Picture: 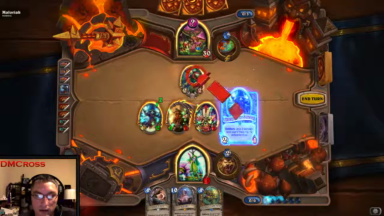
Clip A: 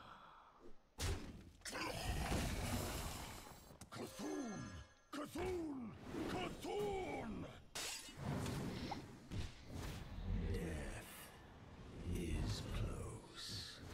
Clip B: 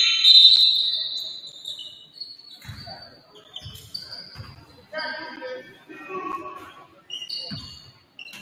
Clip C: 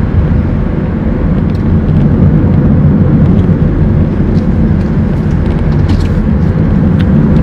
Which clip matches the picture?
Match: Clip A